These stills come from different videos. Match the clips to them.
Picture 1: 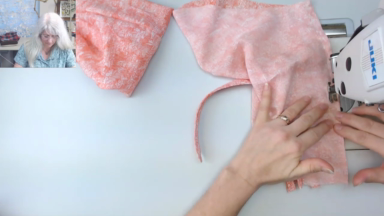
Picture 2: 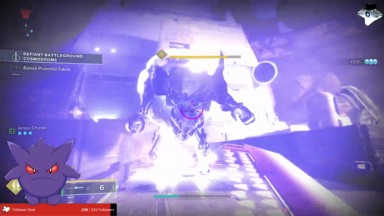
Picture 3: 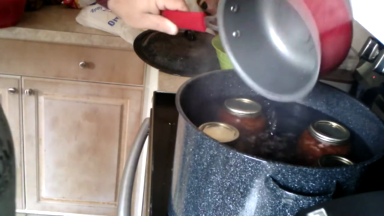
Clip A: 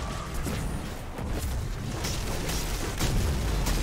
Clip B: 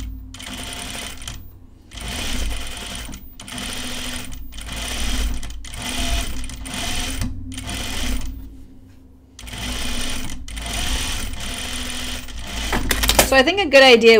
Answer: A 2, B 1